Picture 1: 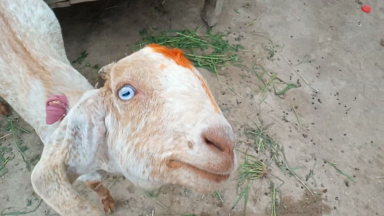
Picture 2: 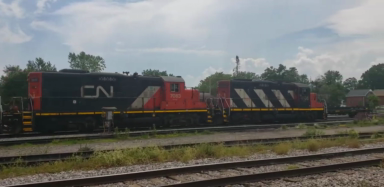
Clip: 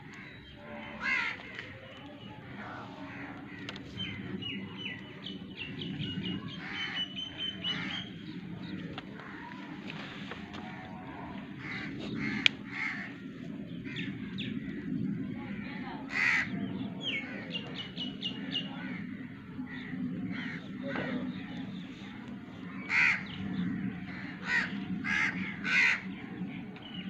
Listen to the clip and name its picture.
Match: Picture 1